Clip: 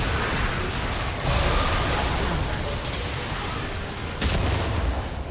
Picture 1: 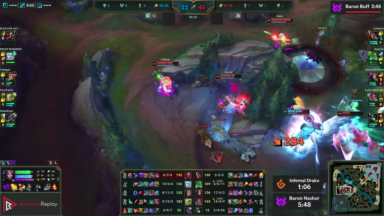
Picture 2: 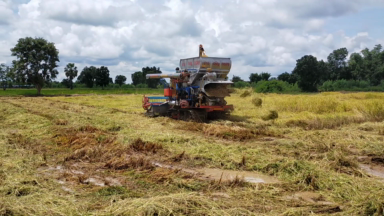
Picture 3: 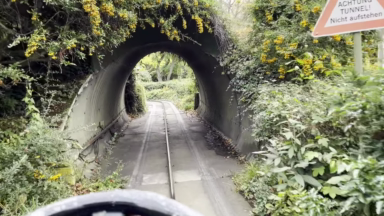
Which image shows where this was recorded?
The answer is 1